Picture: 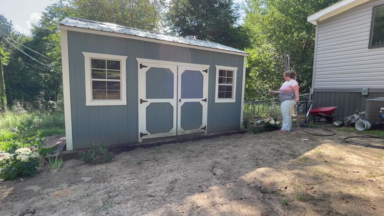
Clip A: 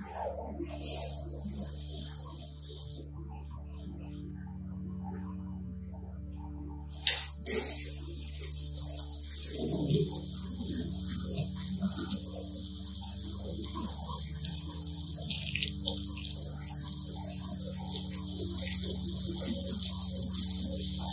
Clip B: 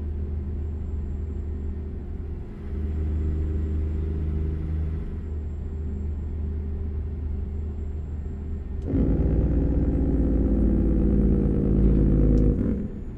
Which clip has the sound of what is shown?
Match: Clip A